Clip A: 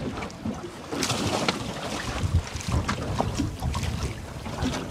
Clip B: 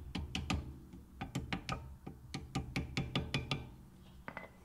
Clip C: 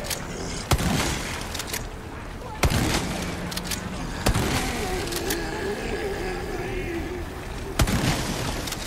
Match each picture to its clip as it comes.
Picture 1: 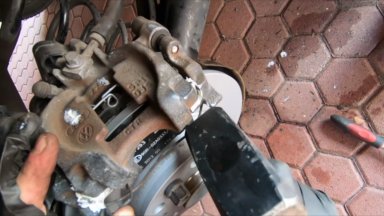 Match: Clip B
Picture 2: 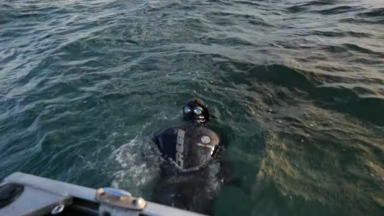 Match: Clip A